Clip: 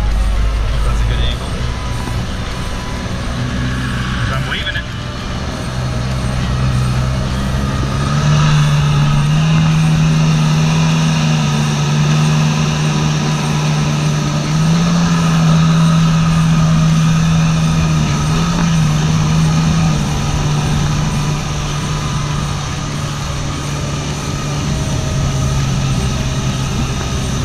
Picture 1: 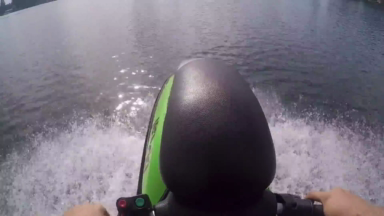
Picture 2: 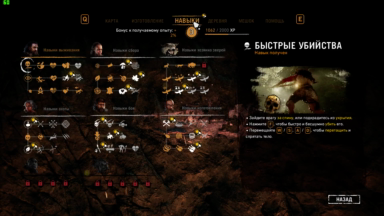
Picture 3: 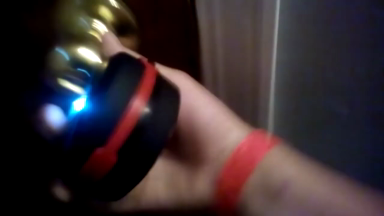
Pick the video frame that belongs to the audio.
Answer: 1